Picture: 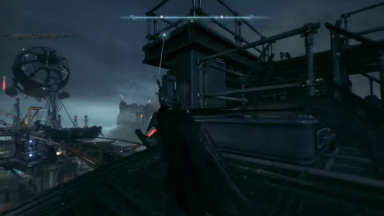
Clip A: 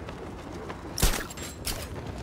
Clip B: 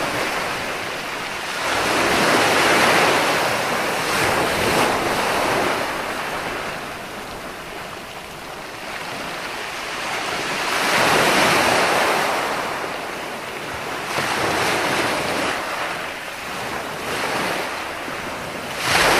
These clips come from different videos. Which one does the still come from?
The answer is A